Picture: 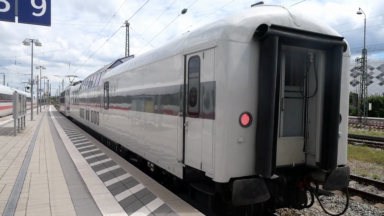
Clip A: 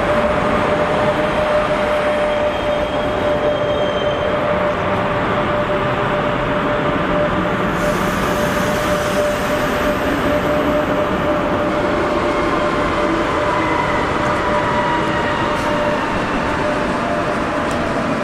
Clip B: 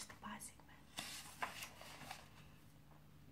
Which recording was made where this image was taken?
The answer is A